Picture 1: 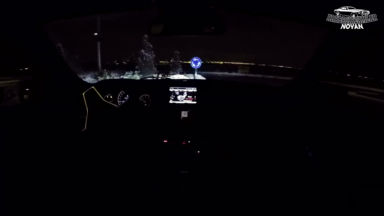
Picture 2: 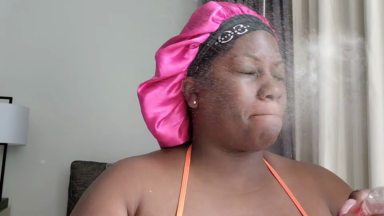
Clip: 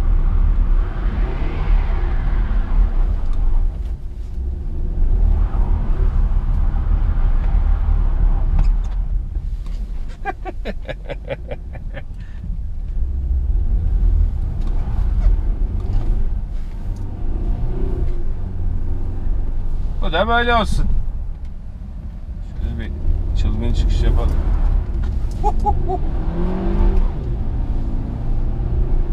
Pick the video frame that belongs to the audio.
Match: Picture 1